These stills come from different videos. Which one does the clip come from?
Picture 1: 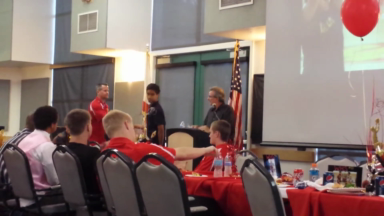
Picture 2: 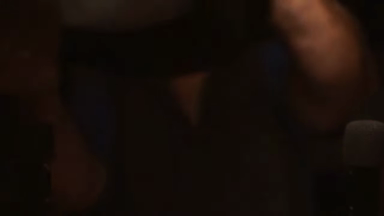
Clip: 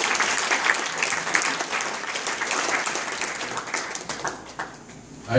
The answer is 1